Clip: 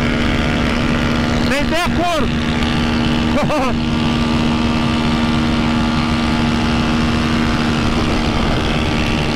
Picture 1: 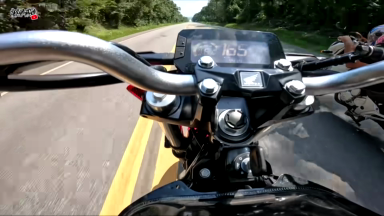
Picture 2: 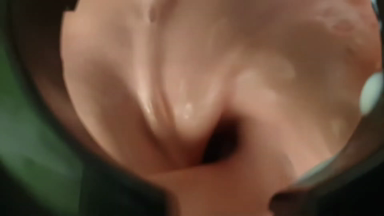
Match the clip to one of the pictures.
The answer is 1